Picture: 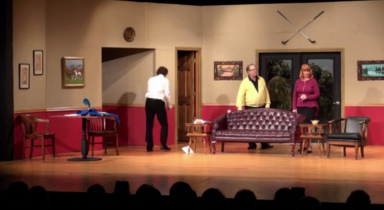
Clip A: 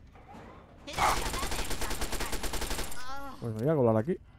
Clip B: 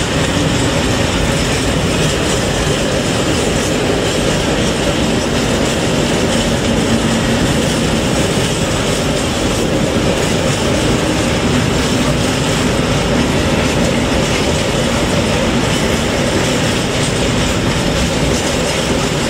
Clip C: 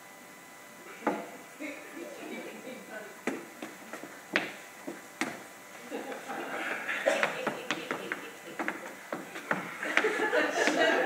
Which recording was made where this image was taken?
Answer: C